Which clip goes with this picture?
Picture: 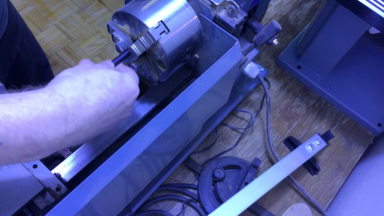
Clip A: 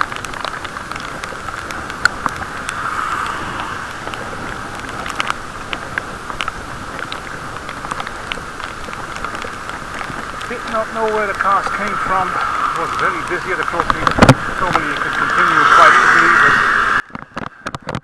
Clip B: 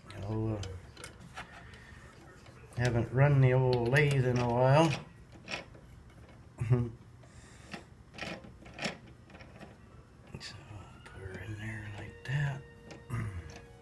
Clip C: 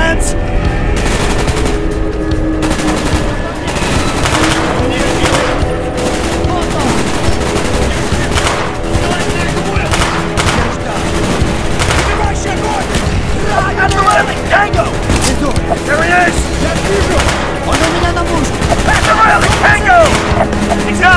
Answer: B